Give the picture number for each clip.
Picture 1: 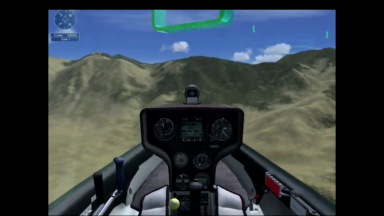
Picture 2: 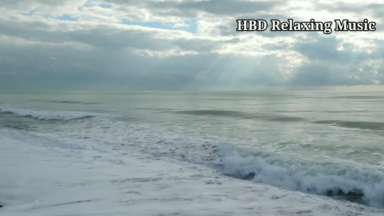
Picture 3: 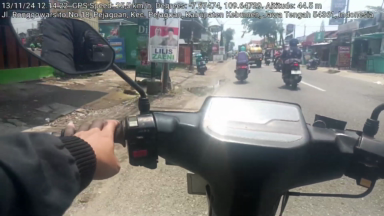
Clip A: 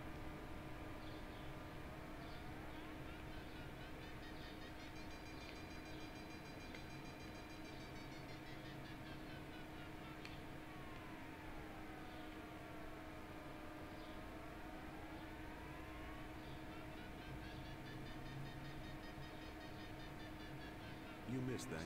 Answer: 1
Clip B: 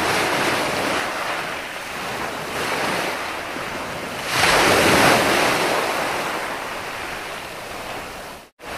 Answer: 2